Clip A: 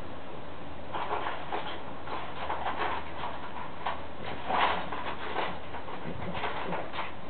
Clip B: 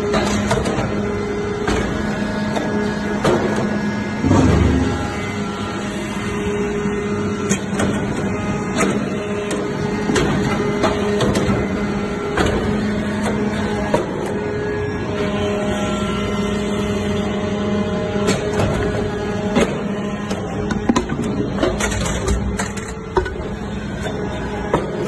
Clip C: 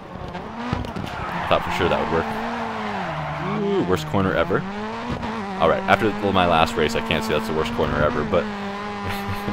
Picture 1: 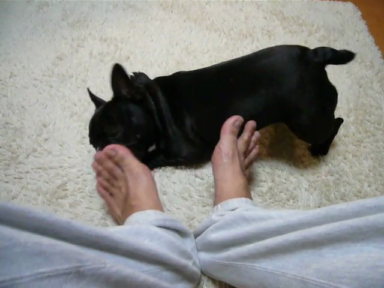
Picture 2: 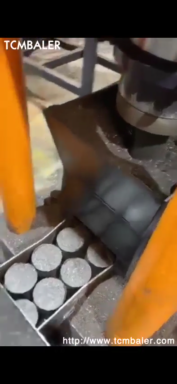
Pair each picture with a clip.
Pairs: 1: A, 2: B